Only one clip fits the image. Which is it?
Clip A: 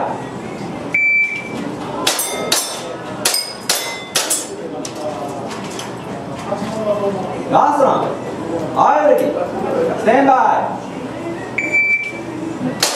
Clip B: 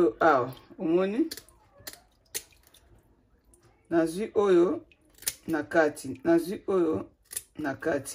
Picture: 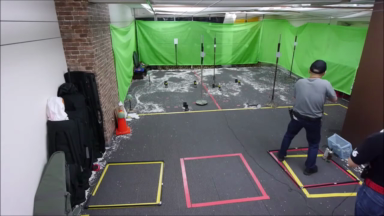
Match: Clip A